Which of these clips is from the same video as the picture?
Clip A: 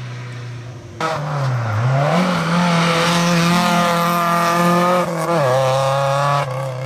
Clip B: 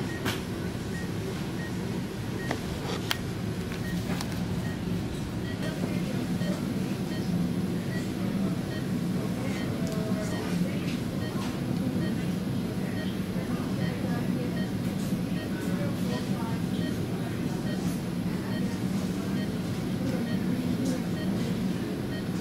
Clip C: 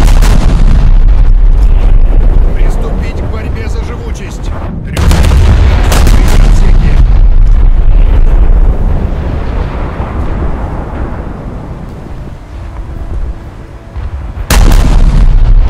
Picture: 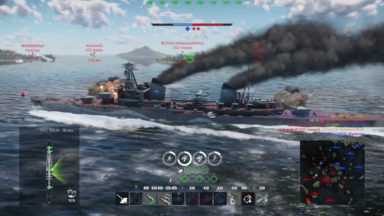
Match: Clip C